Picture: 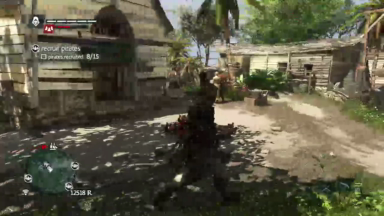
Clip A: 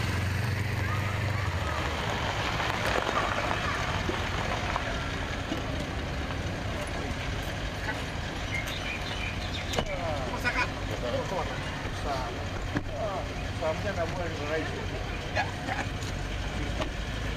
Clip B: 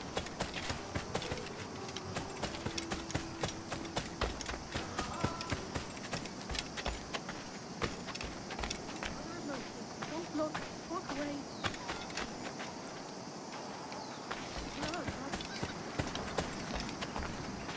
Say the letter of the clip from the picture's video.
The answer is B